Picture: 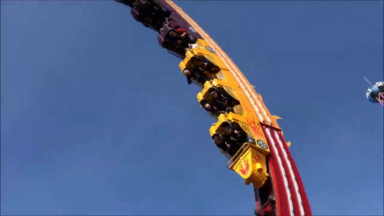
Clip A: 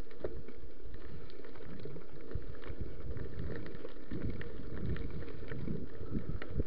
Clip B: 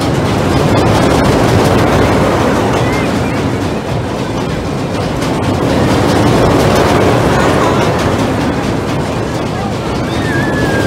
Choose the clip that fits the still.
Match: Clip B